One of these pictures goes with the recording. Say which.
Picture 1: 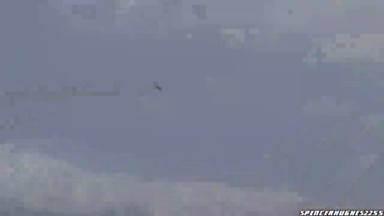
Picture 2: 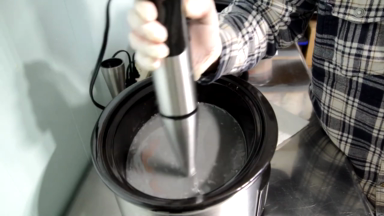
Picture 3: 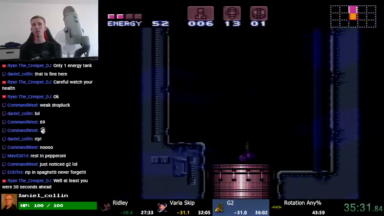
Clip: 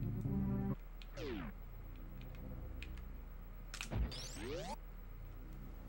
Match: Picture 3